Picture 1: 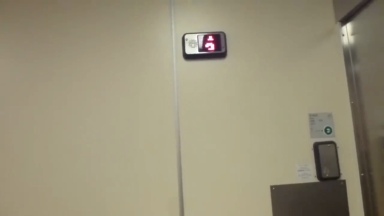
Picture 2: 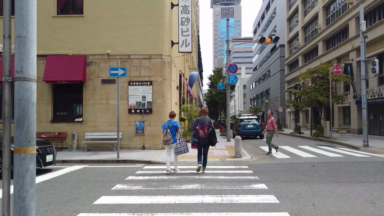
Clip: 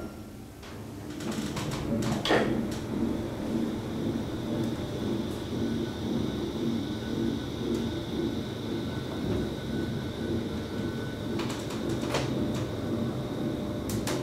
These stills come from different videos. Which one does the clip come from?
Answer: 1